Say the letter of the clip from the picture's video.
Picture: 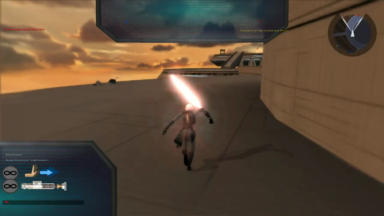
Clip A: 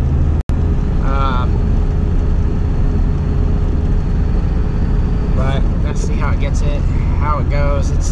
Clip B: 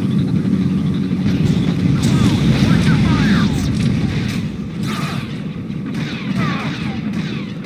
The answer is B